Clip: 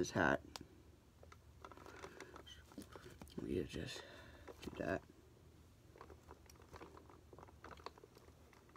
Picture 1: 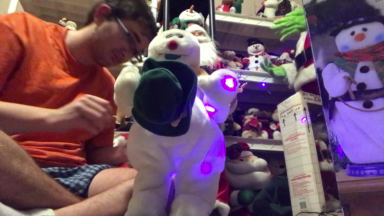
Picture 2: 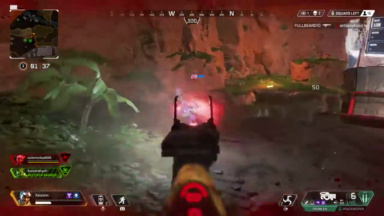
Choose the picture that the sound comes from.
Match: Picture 1